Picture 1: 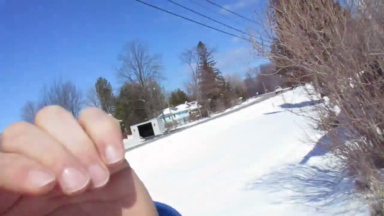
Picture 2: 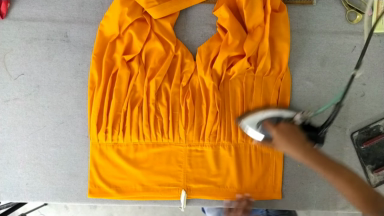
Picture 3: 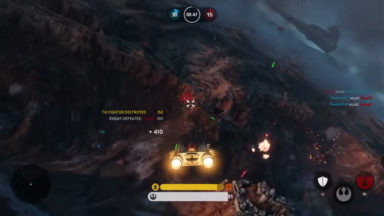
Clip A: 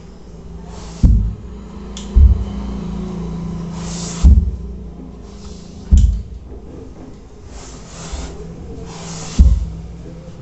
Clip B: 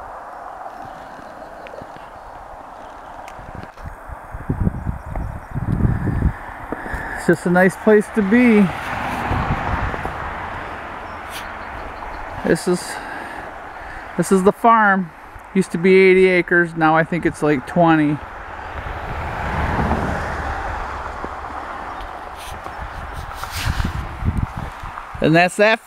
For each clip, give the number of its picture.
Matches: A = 2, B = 1